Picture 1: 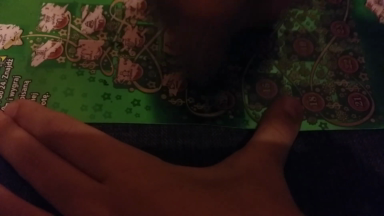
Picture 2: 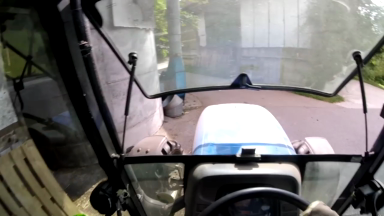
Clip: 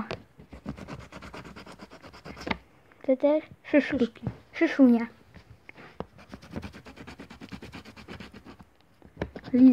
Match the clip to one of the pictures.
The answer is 1